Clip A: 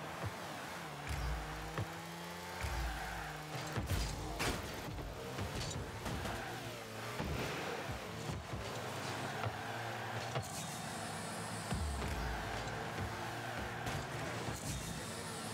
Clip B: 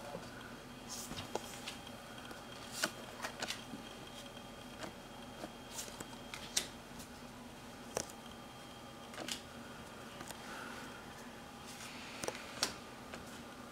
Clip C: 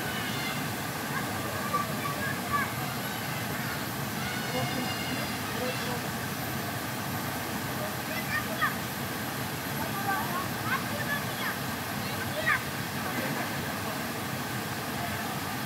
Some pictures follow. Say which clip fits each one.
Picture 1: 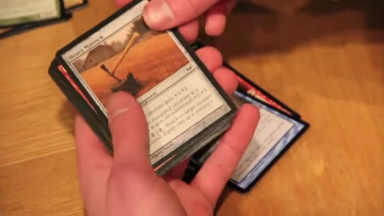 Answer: B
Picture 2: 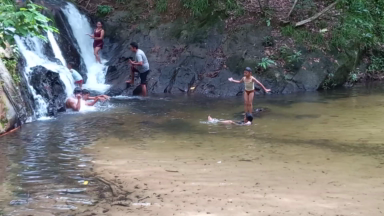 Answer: C